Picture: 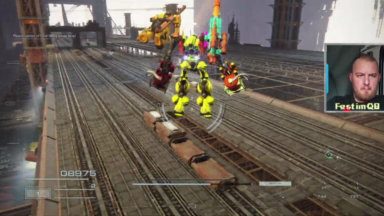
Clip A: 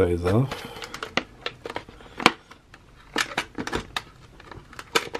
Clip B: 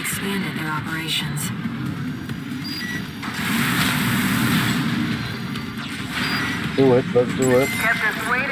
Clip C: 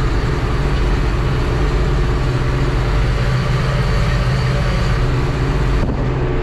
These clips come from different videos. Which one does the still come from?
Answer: B